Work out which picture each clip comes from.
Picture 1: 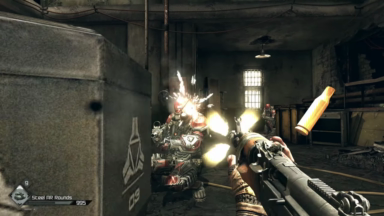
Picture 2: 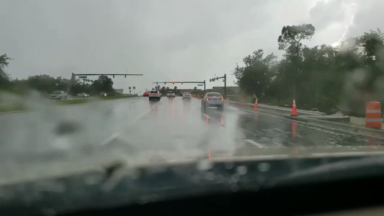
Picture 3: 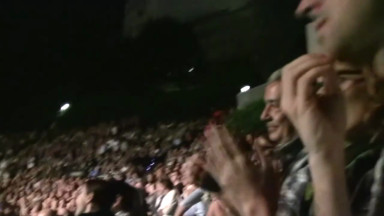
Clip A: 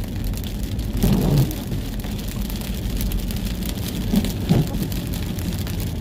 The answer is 2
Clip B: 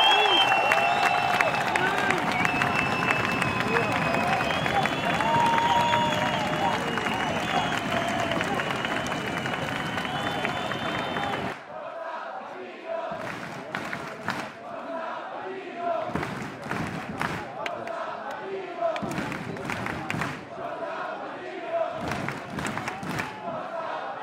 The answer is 3